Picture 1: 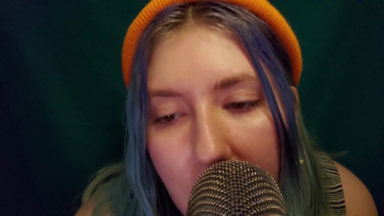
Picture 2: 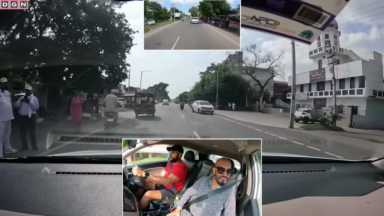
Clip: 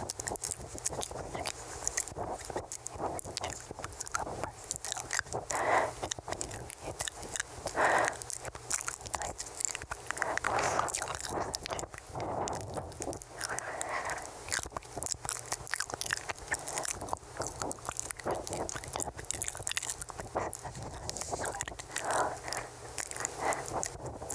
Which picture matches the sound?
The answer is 1